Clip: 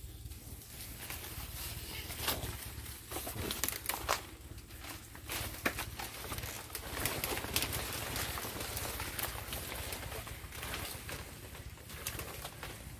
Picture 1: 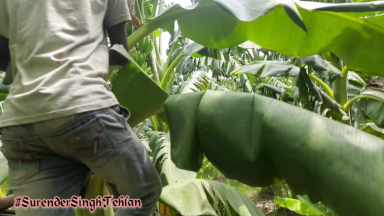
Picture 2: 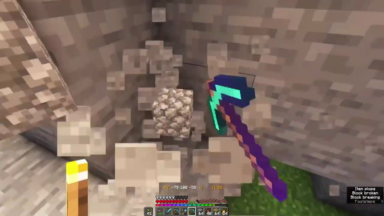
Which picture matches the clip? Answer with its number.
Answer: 1